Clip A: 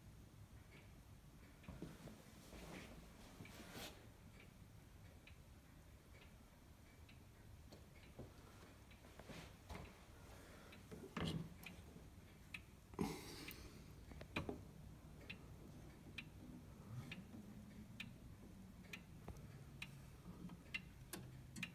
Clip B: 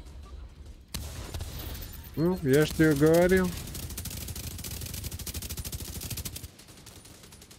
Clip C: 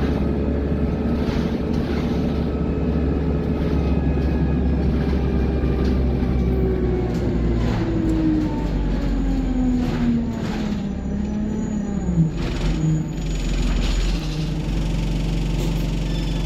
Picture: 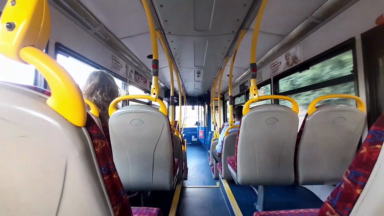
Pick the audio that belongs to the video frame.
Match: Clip C